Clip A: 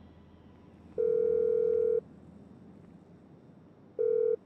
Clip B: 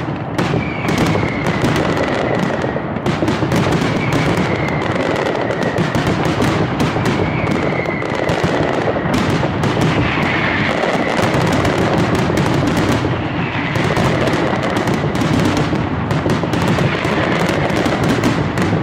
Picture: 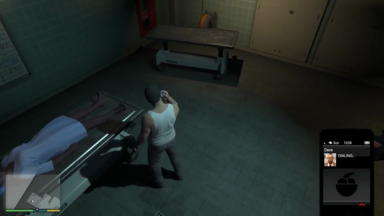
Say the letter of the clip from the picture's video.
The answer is A